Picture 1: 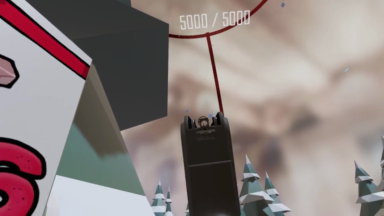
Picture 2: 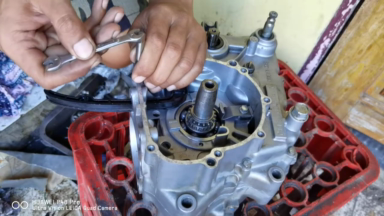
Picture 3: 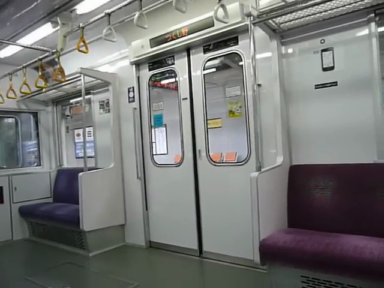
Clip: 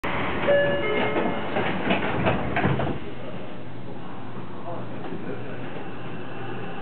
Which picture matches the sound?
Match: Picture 3